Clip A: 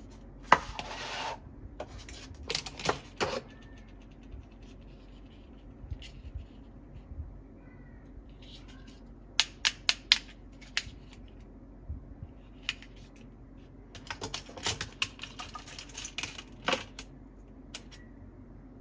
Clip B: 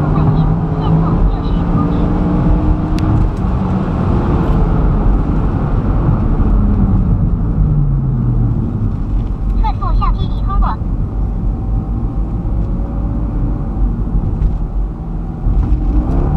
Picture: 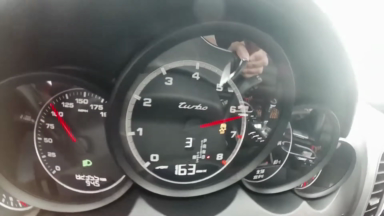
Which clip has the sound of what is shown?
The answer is B